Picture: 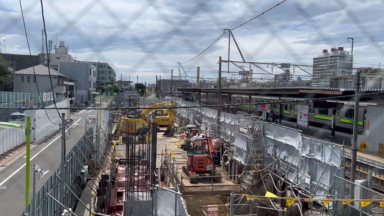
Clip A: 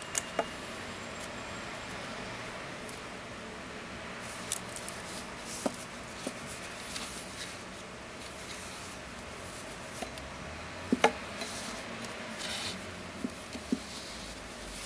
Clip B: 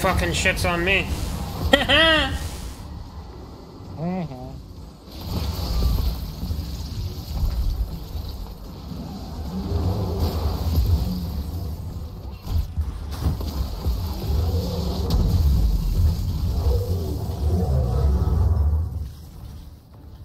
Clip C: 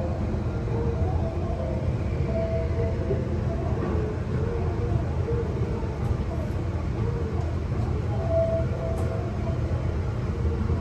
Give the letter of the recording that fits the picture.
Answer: C